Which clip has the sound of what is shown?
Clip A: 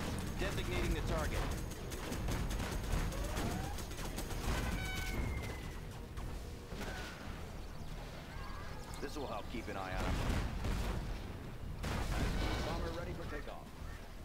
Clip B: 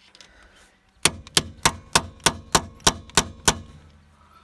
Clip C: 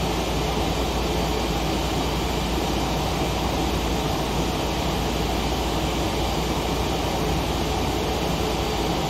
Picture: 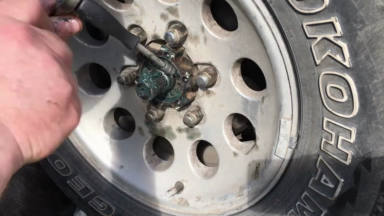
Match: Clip B